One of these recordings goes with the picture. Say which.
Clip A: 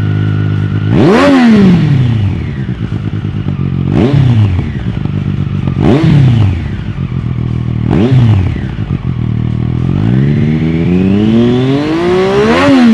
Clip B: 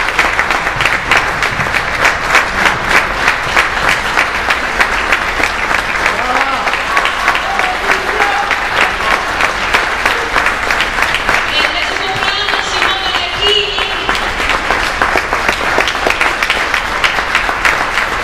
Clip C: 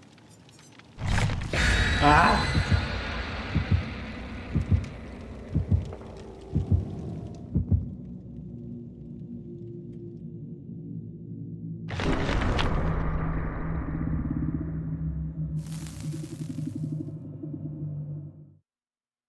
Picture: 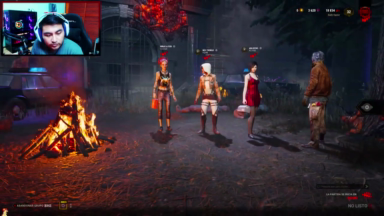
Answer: C